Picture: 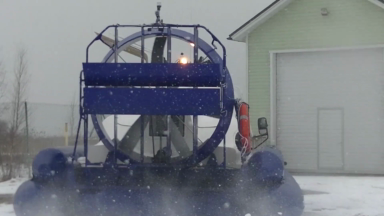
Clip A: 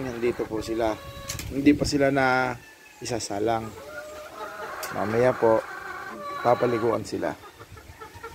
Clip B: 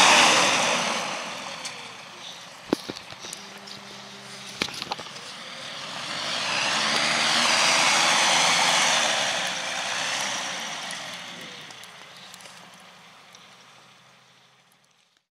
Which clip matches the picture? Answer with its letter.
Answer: B